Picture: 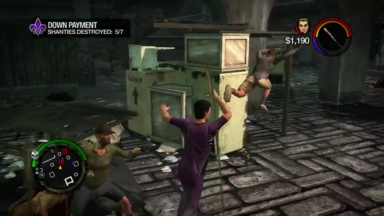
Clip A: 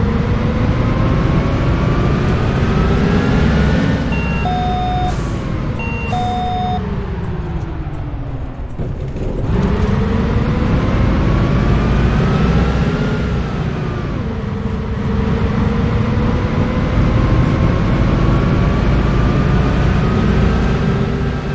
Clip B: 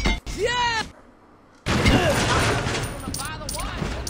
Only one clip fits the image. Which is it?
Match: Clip B